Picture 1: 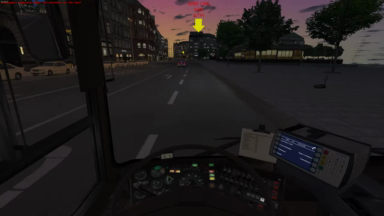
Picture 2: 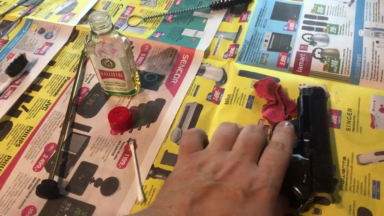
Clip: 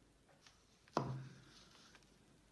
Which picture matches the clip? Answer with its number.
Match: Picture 2